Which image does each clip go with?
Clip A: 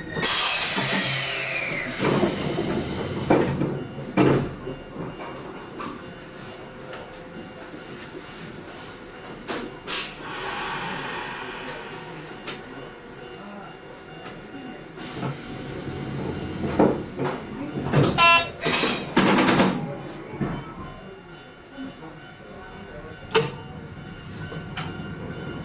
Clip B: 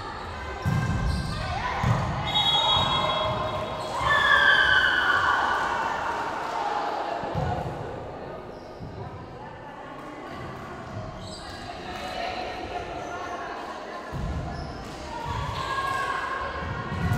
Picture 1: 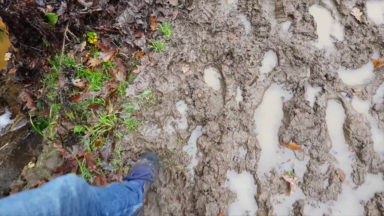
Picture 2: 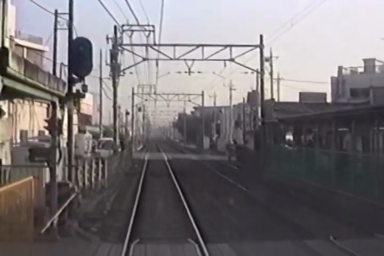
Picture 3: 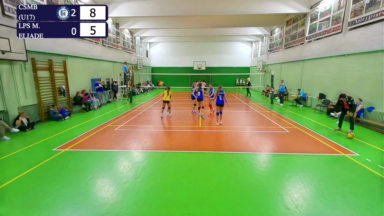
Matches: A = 2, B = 3